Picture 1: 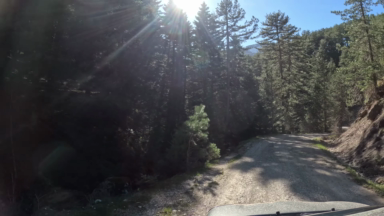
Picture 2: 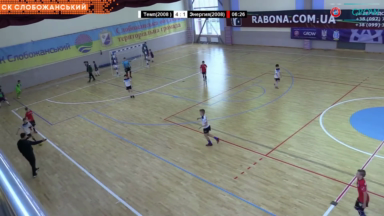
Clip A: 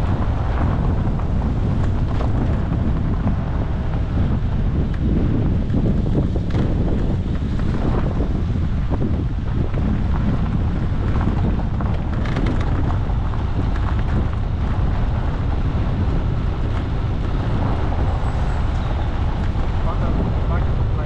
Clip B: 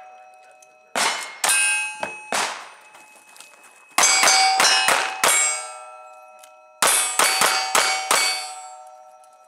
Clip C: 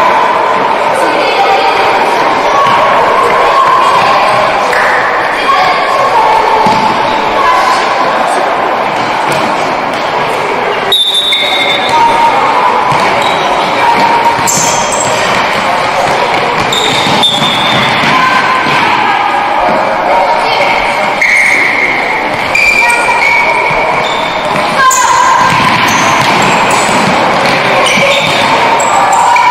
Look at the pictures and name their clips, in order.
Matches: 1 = A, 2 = C